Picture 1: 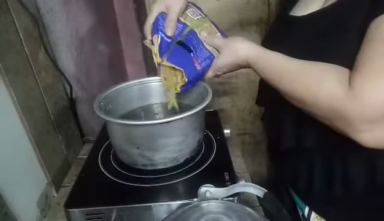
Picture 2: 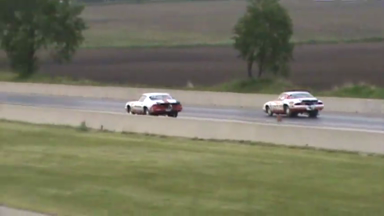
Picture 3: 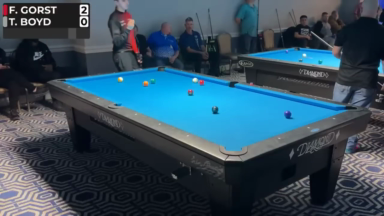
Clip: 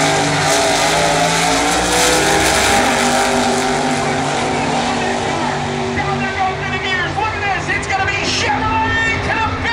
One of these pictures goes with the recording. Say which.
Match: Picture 2